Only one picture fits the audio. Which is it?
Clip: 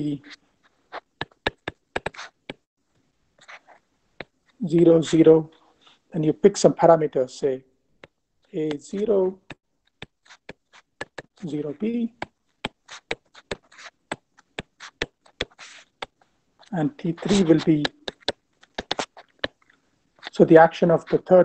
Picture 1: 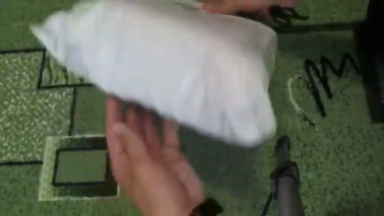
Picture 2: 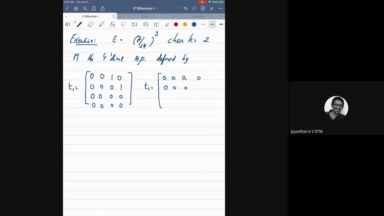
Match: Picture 2